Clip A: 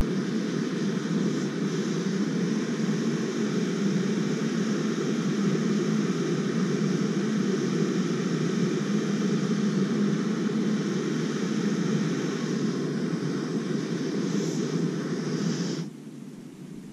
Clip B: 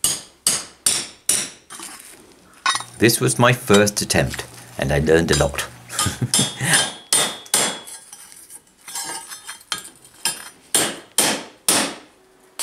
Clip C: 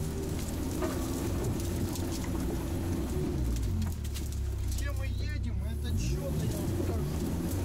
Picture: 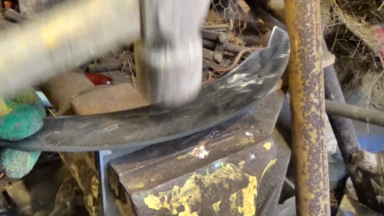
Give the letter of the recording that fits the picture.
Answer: B